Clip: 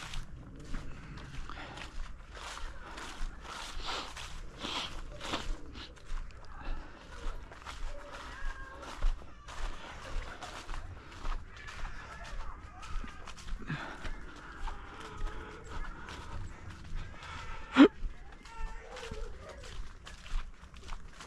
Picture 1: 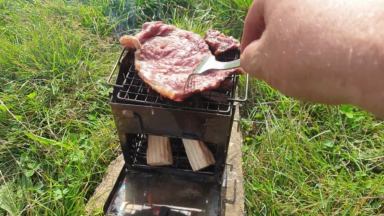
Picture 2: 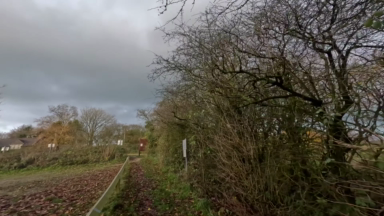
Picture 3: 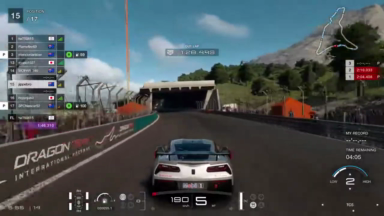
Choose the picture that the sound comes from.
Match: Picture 2